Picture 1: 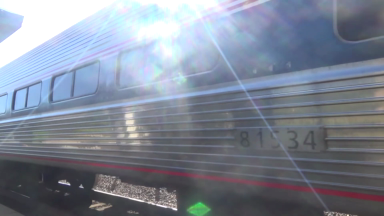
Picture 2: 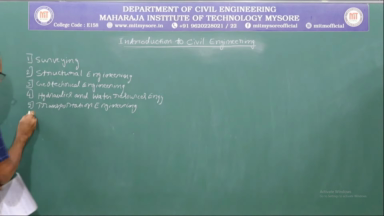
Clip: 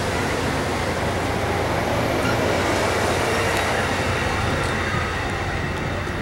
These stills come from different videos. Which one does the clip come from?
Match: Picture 1